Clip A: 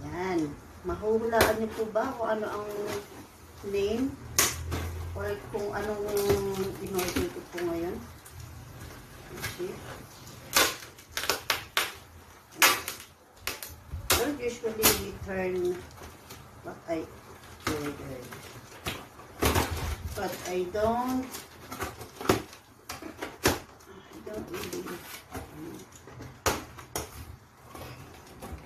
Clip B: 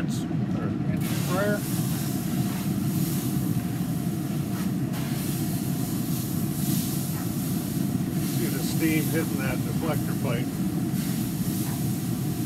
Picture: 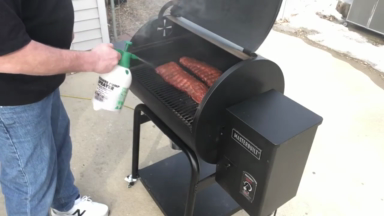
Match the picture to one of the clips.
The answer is B